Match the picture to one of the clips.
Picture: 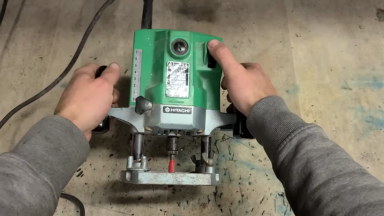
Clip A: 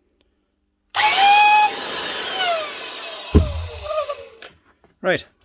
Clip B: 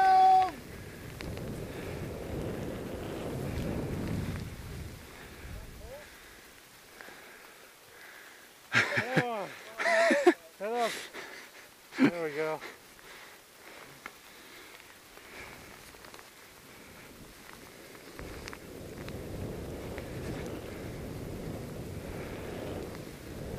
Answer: A